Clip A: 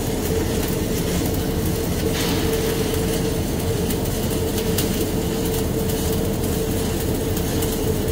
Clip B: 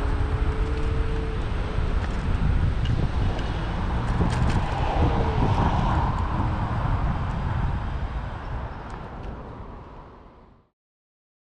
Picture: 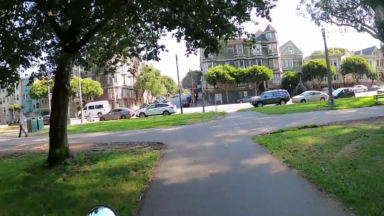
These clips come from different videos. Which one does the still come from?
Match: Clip B